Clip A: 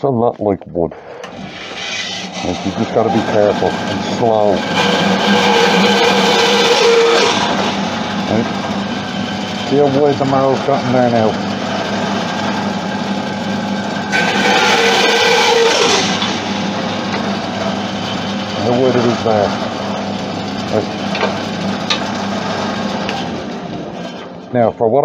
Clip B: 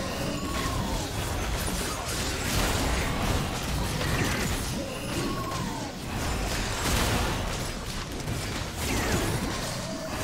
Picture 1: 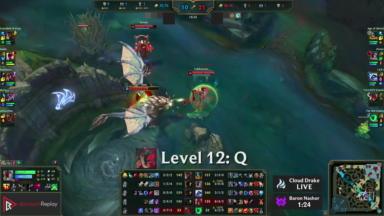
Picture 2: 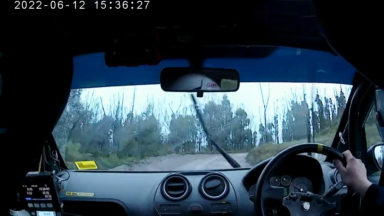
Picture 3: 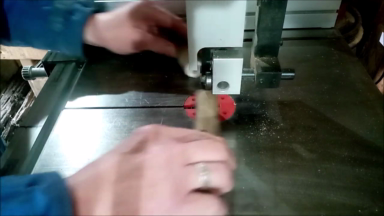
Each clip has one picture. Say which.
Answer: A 3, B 1